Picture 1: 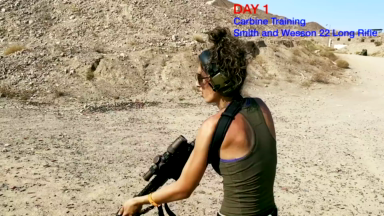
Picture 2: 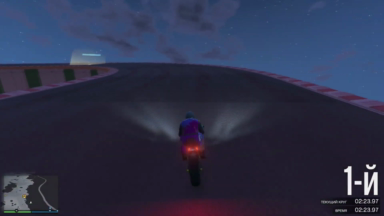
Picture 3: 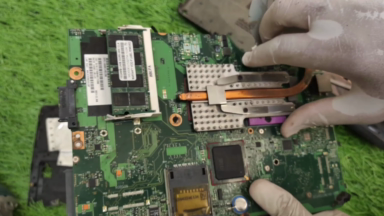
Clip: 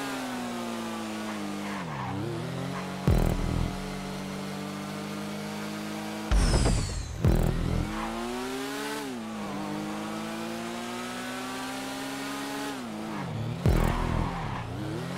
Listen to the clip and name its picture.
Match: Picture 2